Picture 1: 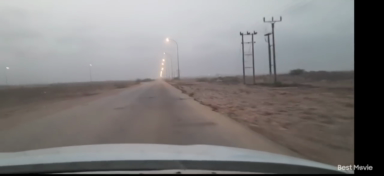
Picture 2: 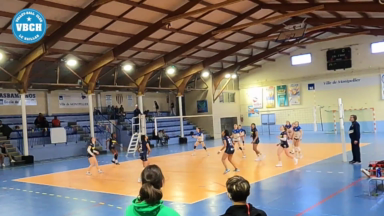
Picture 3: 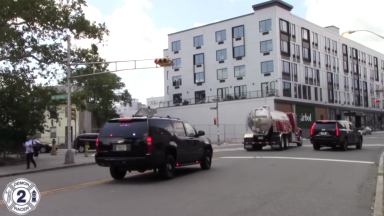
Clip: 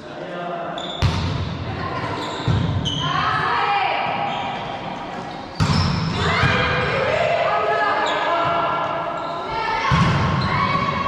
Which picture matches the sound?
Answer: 2